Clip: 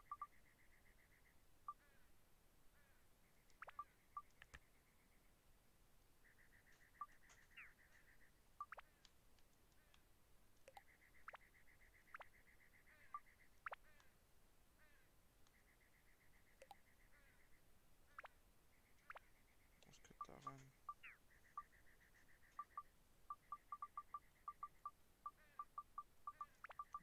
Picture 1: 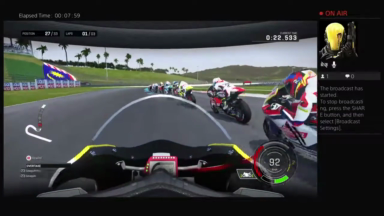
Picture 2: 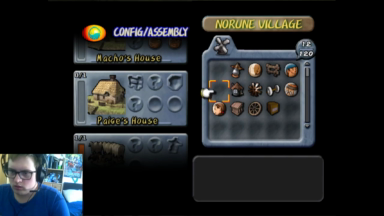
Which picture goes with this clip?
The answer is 2